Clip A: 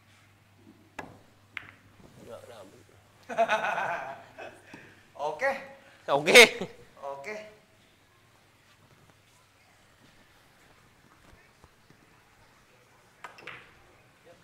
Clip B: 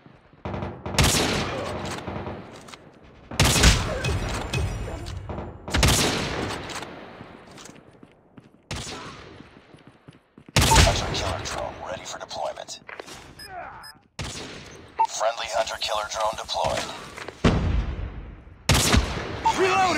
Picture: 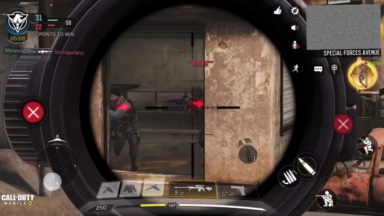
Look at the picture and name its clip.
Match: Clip B